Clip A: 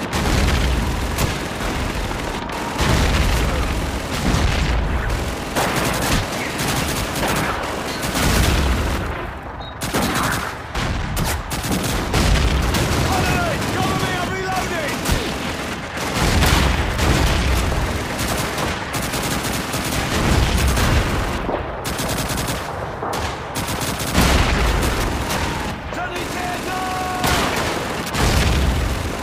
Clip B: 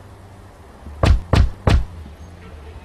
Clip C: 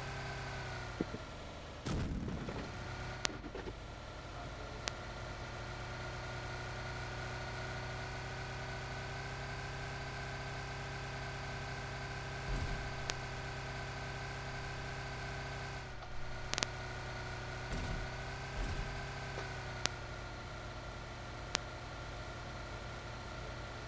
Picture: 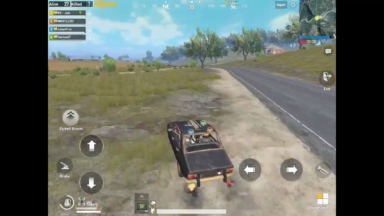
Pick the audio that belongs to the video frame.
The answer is C